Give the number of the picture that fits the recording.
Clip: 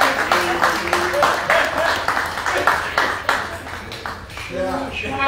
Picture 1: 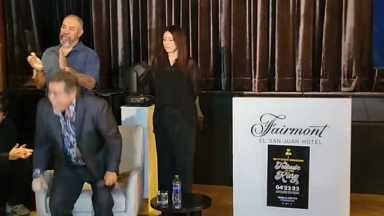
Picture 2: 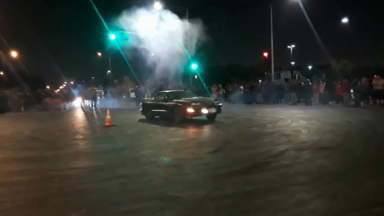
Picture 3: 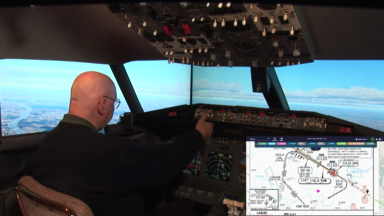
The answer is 1